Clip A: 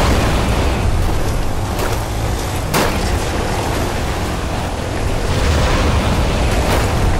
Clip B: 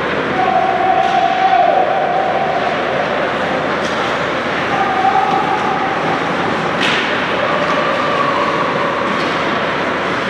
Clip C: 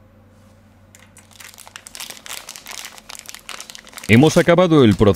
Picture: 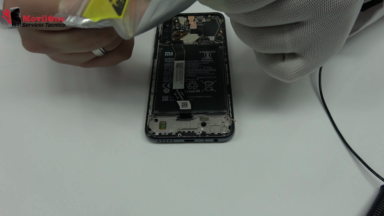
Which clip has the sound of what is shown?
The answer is C